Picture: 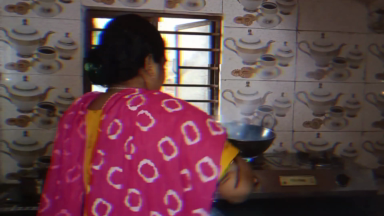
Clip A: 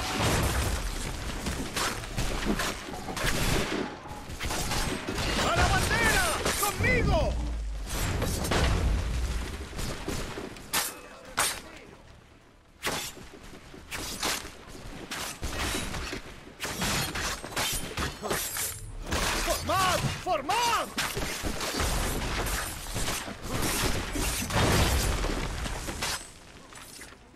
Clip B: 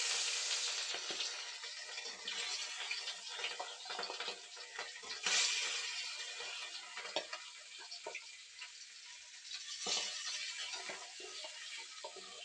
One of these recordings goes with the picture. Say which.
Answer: B